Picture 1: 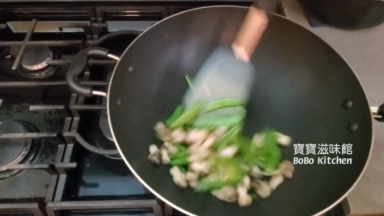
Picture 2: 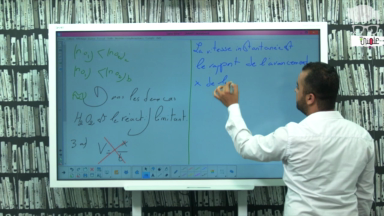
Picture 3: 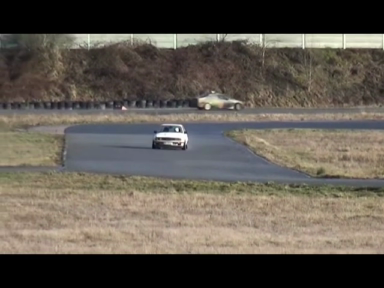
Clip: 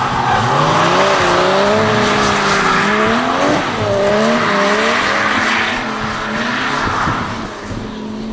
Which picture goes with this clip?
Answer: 3